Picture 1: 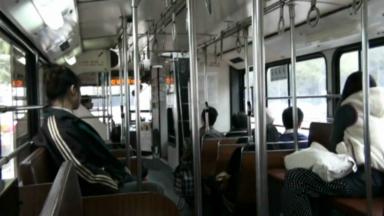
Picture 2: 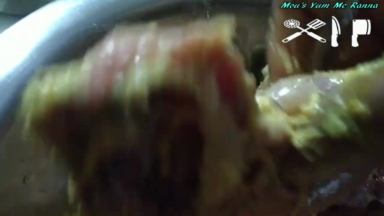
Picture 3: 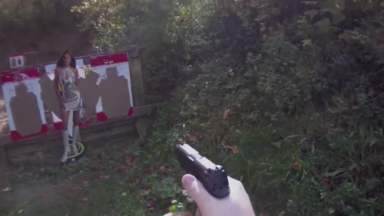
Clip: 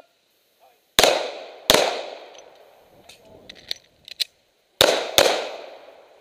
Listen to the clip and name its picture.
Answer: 3